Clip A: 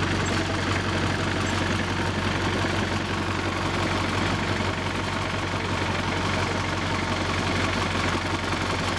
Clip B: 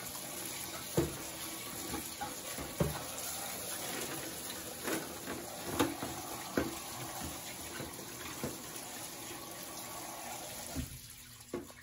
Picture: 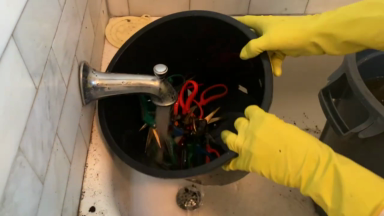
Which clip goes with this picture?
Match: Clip B